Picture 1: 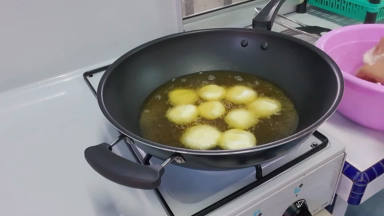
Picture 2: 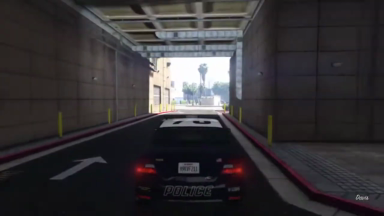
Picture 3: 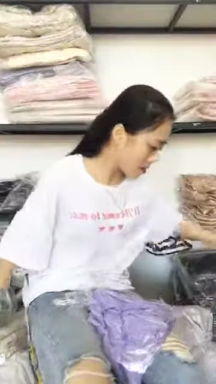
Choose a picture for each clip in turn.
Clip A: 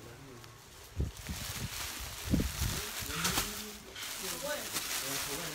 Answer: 3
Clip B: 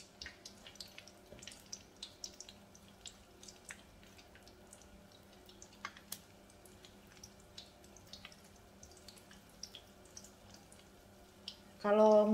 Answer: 1